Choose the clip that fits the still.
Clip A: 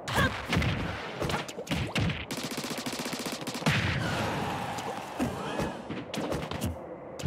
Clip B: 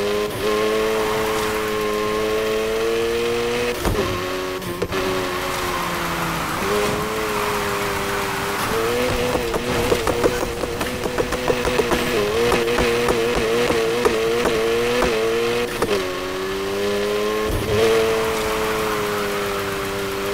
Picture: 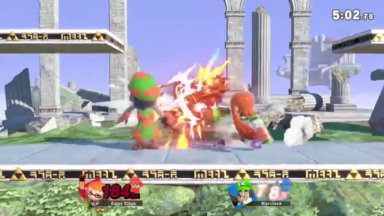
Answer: A